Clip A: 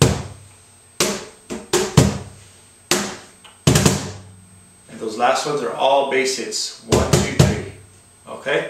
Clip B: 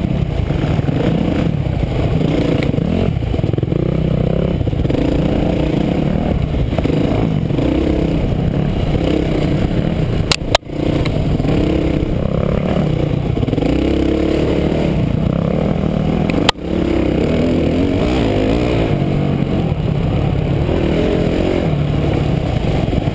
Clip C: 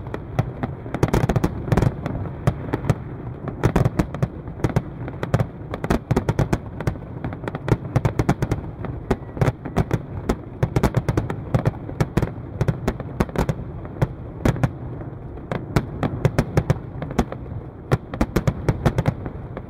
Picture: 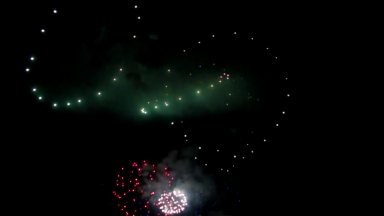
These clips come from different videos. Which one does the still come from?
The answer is C